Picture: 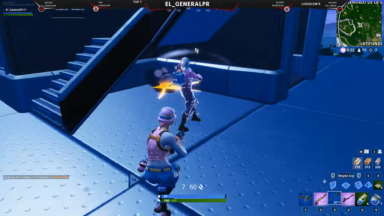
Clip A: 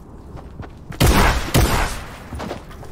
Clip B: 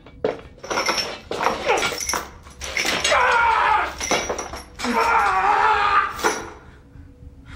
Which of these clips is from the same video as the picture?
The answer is A